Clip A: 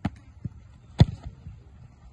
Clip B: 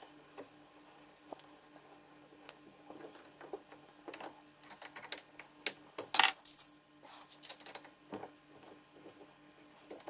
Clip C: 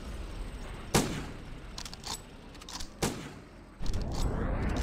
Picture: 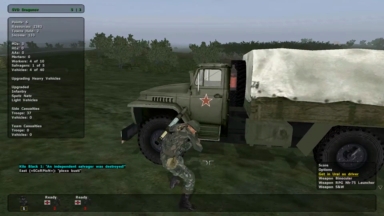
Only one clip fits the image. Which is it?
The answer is C